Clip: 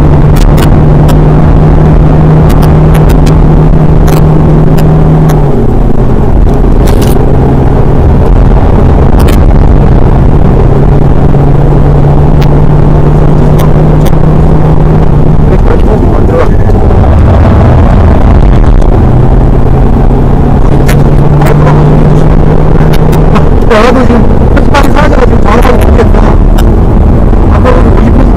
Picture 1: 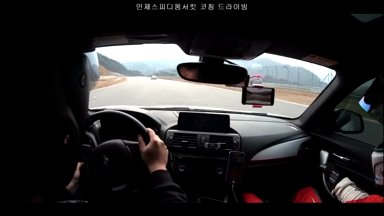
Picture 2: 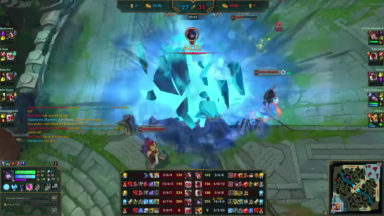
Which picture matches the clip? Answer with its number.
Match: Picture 1